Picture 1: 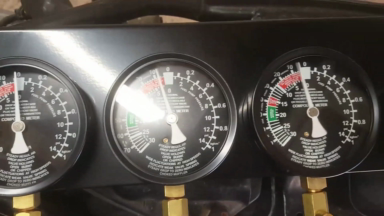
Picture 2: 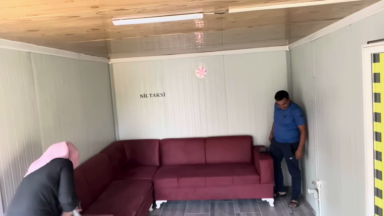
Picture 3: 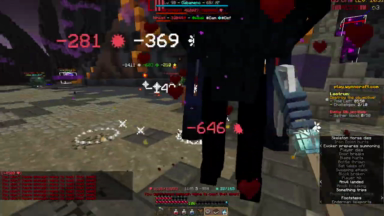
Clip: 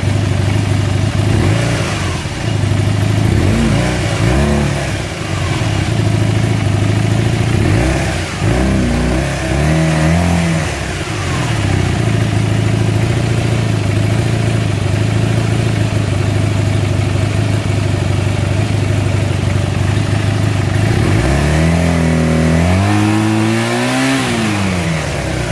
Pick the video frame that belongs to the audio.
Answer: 1